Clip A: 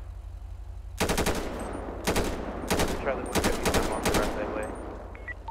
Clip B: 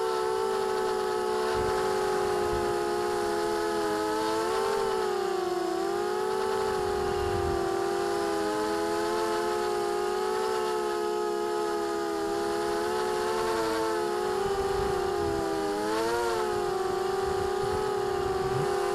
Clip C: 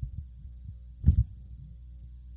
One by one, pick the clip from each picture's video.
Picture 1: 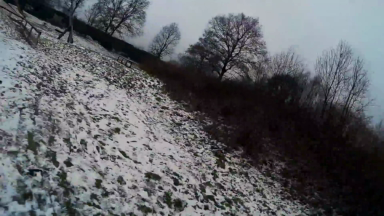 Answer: B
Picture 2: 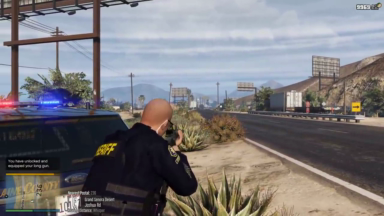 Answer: A